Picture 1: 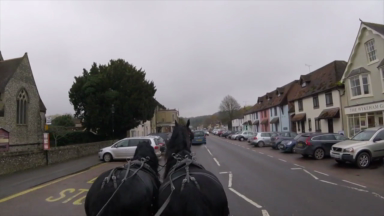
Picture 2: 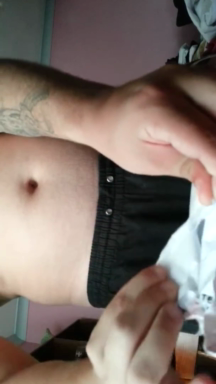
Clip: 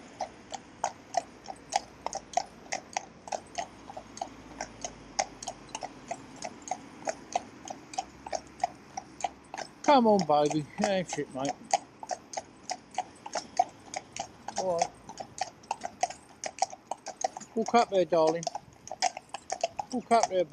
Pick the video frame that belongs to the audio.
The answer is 1